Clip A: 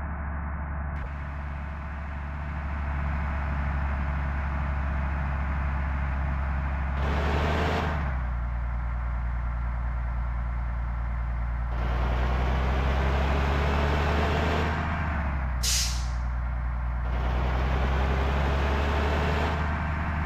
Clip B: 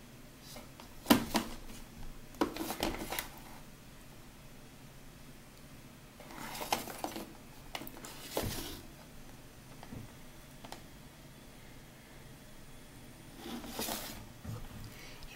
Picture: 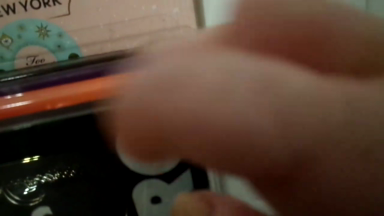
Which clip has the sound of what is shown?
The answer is B